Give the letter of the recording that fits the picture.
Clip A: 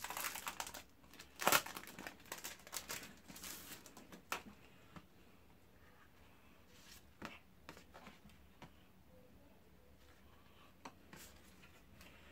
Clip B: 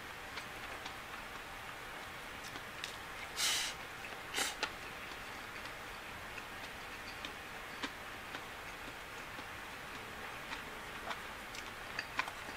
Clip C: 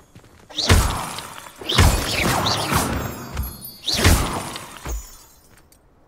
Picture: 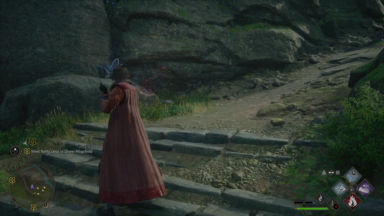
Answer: C